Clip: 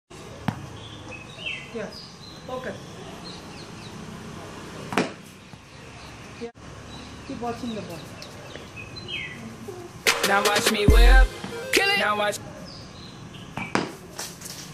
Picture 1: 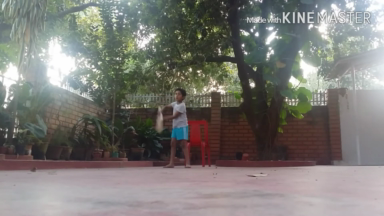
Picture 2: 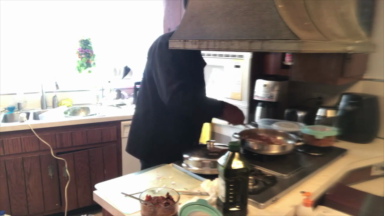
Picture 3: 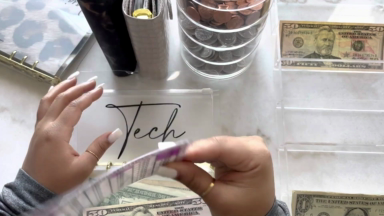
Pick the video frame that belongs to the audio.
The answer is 1